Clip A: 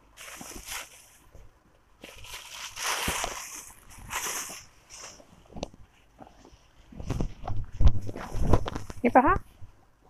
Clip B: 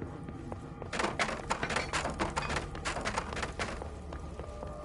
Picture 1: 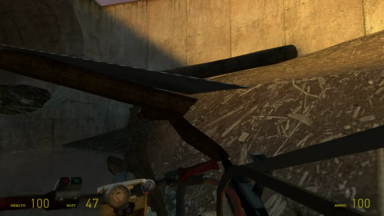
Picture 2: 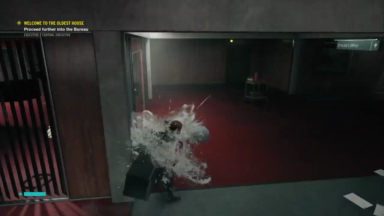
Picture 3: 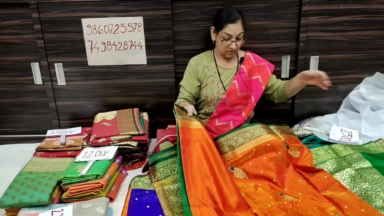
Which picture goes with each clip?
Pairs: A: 3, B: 2